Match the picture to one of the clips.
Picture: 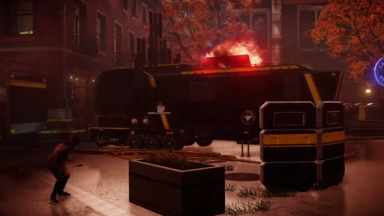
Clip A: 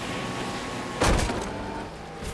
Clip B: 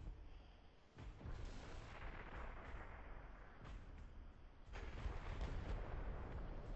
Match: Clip B